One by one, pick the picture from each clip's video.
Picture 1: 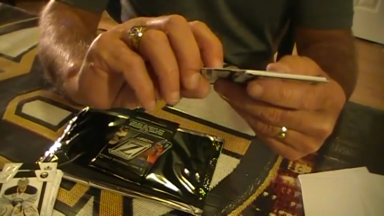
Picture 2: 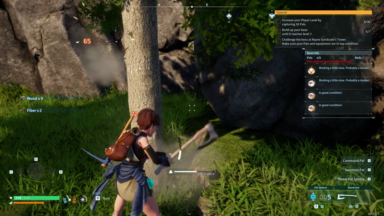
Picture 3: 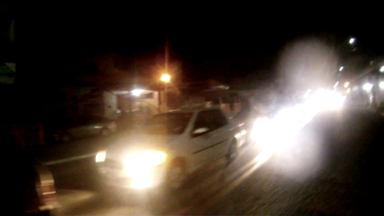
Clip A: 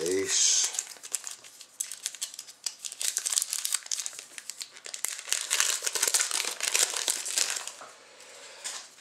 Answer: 1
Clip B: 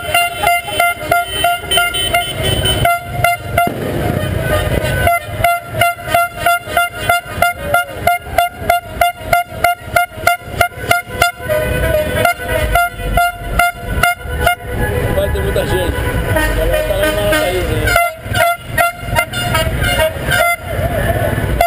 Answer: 3